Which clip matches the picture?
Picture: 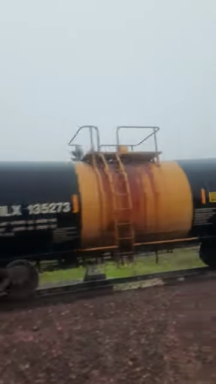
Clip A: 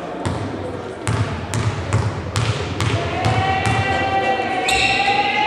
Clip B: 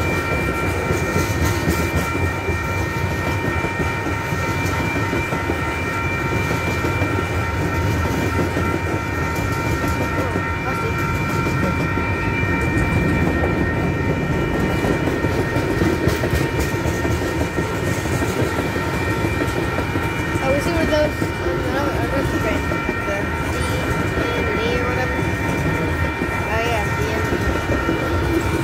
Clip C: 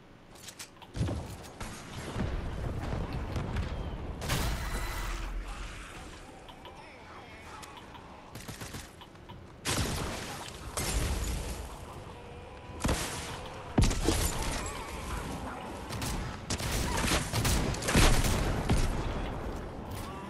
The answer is B